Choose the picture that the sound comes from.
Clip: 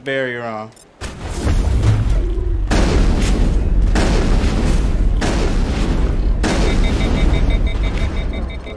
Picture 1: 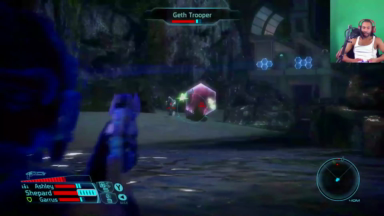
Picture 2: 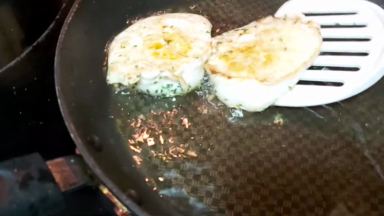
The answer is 1